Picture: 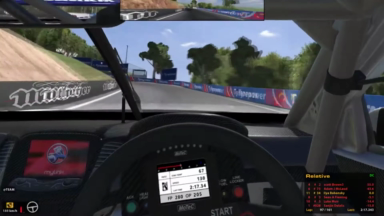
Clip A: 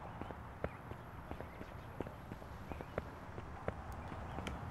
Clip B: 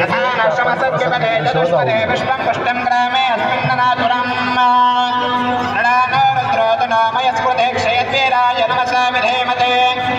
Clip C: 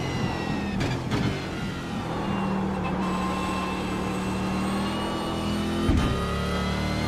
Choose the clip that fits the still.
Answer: C